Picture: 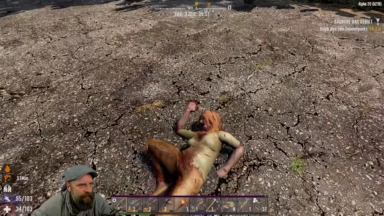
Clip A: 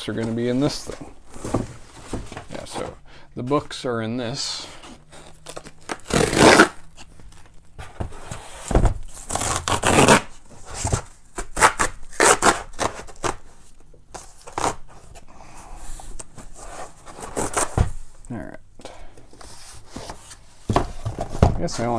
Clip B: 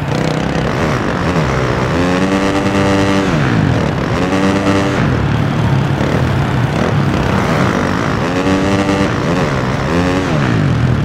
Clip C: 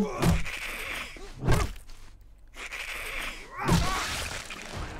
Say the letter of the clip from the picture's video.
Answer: C